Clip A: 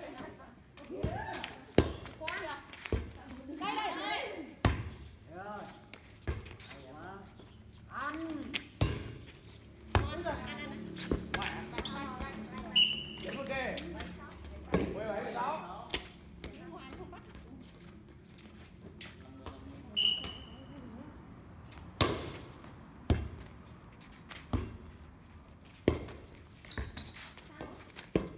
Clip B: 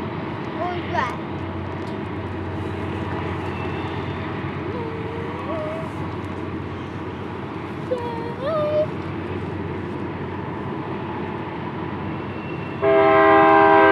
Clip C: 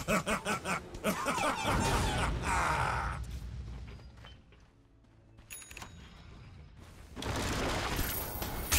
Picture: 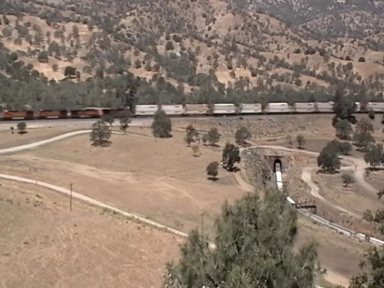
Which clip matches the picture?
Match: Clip B